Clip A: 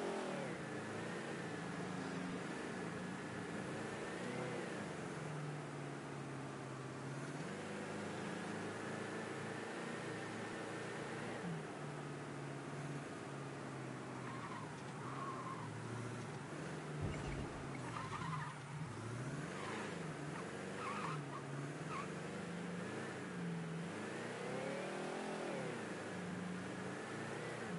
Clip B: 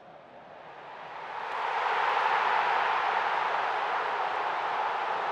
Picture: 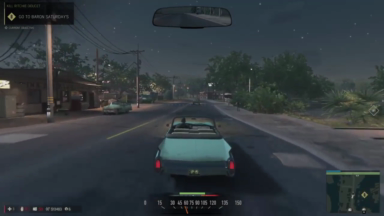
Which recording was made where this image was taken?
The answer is A